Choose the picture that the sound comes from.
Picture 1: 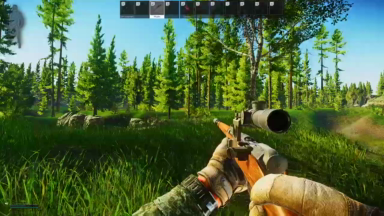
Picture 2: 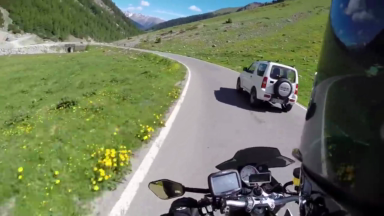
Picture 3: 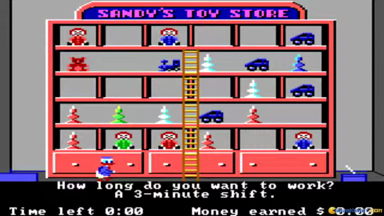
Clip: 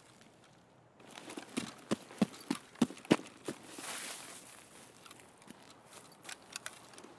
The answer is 1